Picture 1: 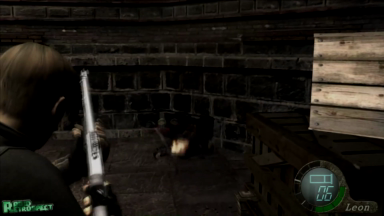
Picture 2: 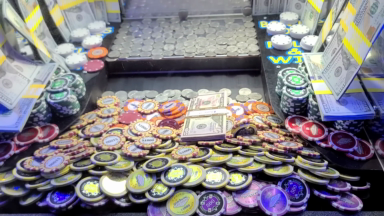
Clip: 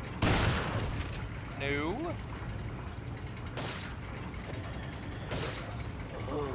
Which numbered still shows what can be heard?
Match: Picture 1